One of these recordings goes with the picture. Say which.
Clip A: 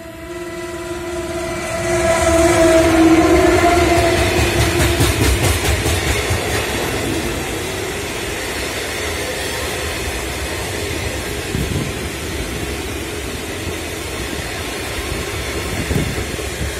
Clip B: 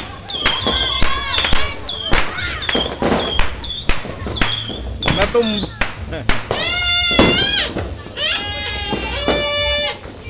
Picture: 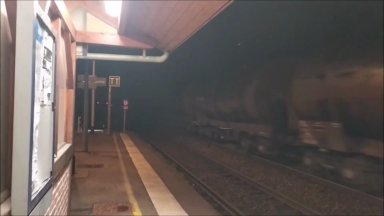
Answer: A